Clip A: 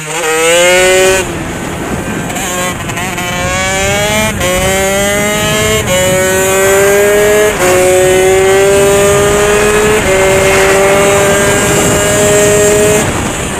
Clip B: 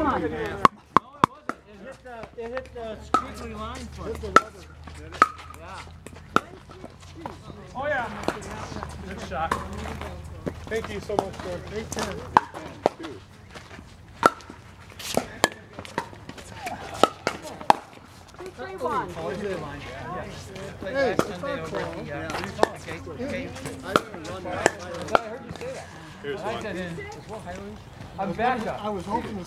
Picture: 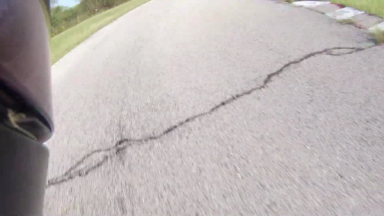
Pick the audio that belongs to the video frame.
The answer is A